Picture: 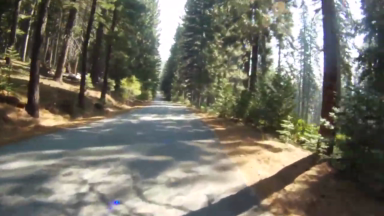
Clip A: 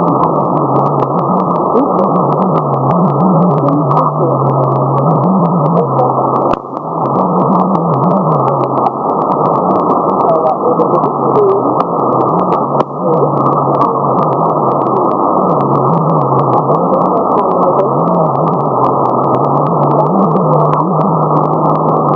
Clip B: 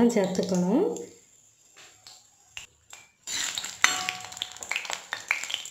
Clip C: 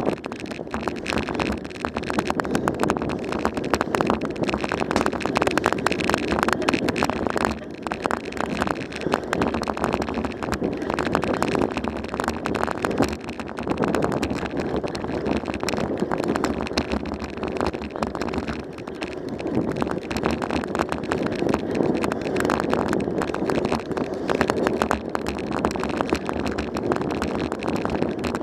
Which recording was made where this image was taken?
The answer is C